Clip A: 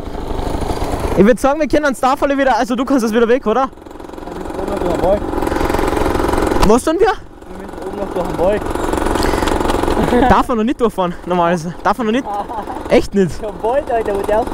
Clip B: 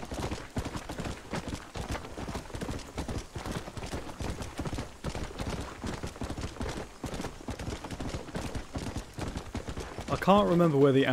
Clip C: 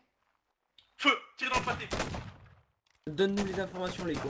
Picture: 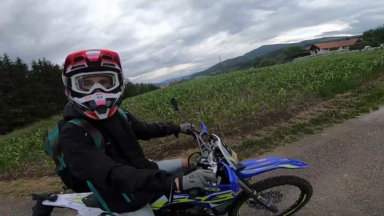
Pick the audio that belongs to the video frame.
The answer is A